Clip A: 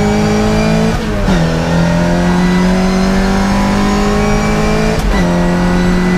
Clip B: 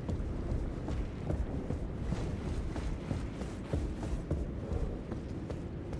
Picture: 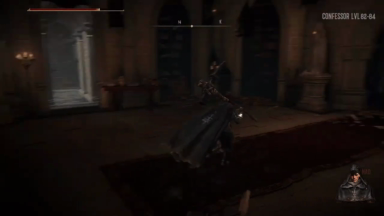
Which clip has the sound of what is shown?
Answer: B